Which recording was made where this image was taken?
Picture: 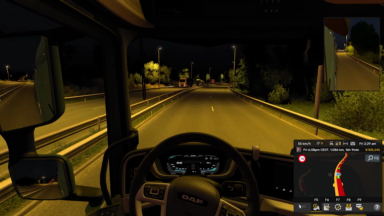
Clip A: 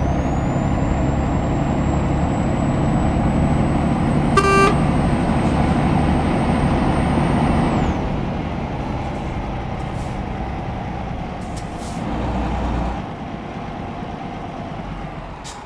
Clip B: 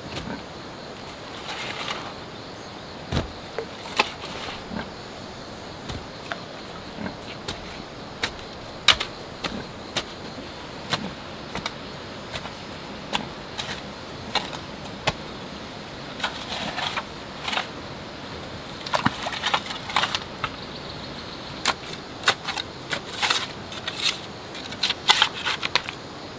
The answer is A